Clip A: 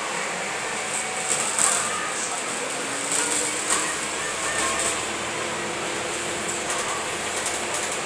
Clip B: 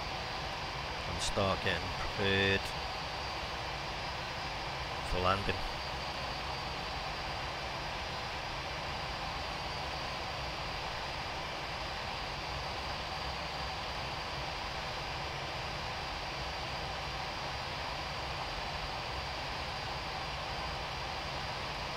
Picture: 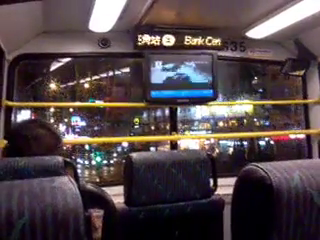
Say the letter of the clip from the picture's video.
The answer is A